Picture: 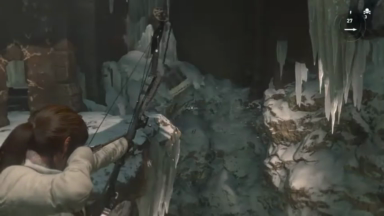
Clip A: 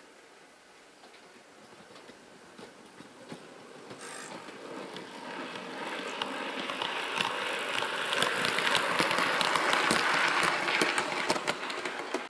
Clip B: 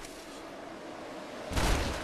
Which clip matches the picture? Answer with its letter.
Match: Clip B